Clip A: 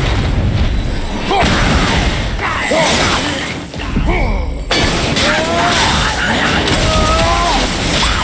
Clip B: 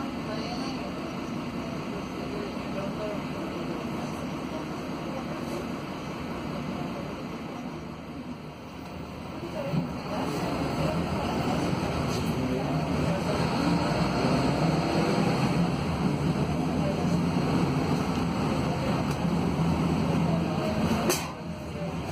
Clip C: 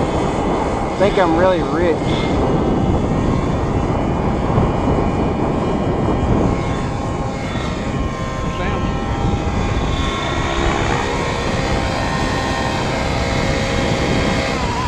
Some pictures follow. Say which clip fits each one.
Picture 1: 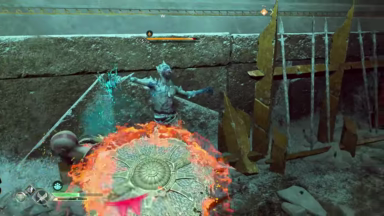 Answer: A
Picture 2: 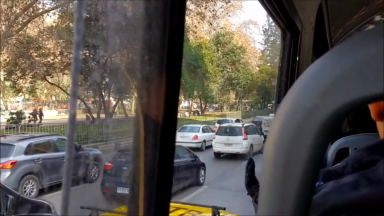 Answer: B